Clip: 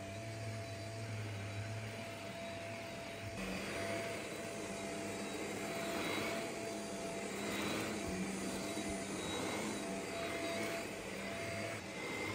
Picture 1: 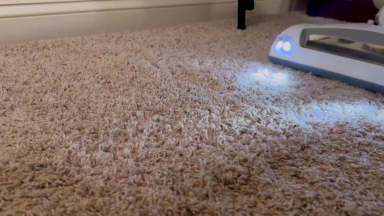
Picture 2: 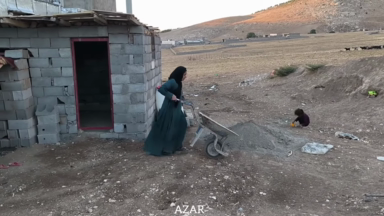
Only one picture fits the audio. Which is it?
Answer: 1